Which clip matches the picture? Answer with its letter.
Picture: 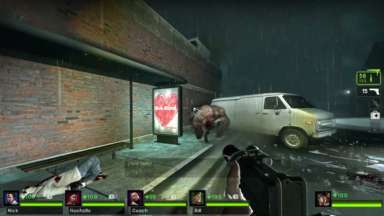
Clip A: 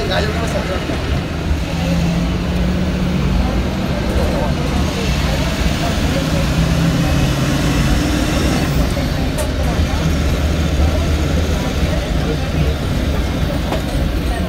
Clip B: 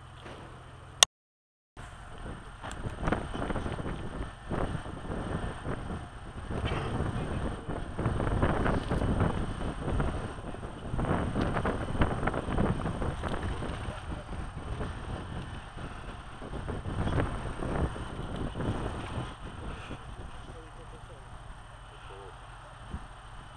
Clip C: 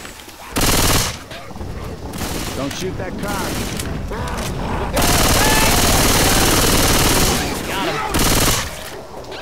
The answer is C